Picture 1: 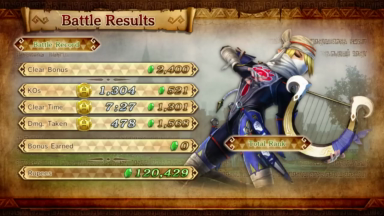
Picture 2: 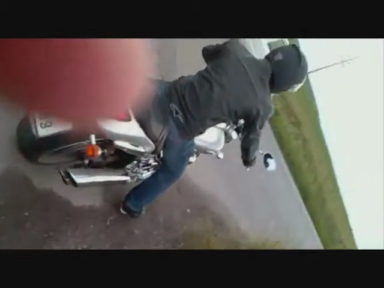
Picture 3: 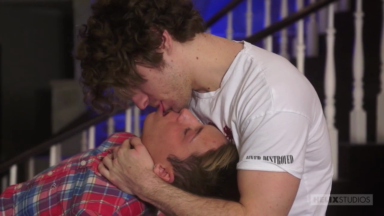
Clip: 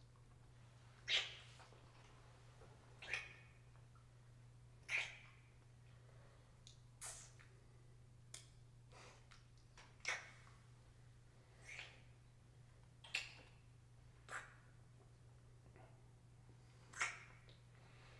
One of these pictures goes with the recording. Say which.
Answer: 3